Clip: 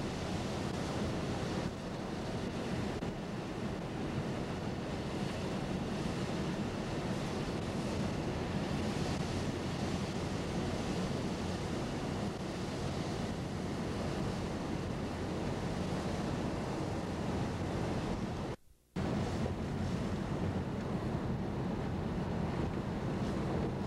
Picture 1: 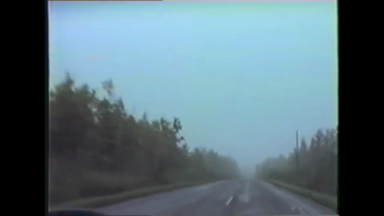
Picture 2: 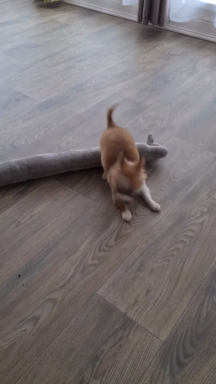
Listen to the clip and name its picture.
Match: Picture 1